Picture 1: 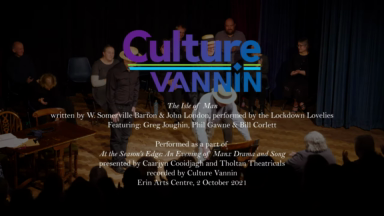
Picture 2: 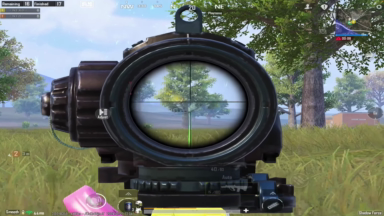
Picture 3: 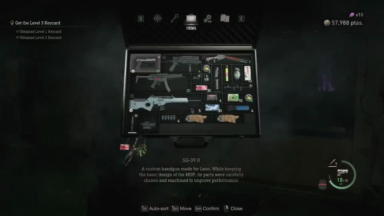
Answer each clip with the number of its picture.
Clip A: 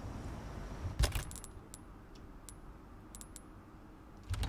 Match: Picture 3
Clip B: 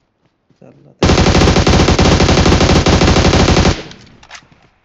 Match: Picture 2